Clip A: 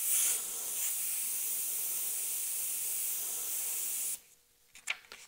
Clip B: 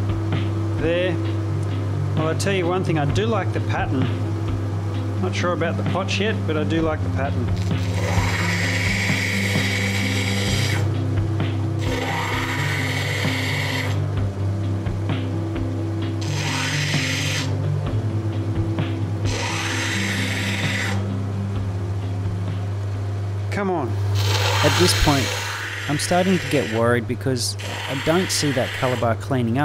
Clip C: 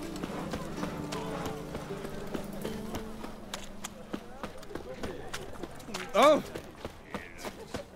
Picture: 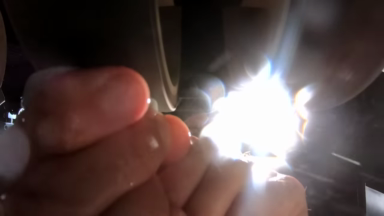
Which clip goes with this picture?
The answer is B